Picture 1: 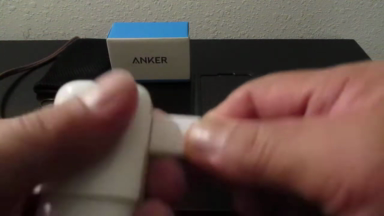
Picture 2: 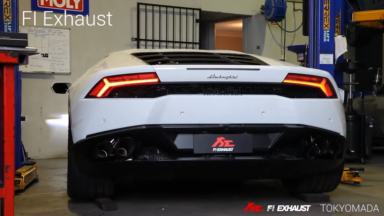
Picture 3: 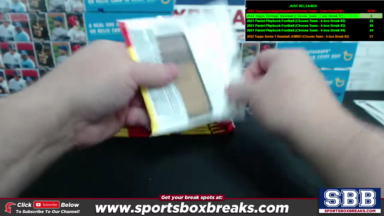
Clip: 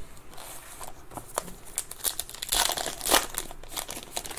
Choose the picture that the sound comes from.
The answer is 3